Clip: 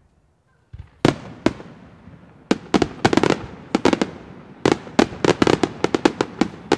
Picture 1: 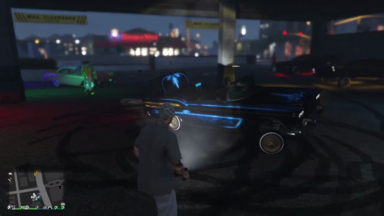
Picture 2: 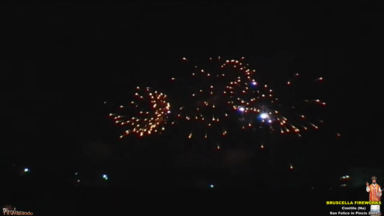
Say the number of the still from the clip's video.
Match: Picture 2